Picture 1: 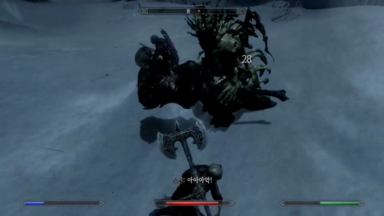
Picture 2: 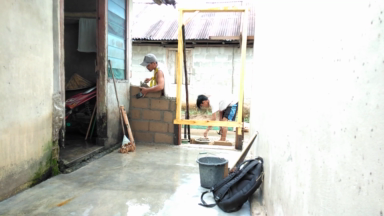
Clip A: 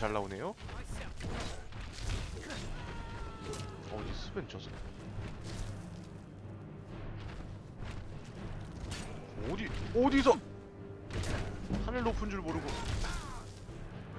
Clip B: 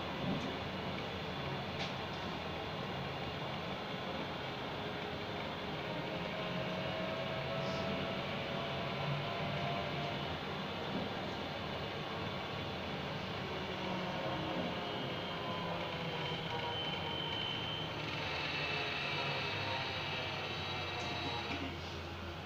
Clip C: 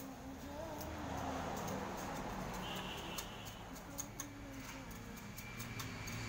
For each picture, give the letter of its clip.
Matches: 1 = A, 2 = C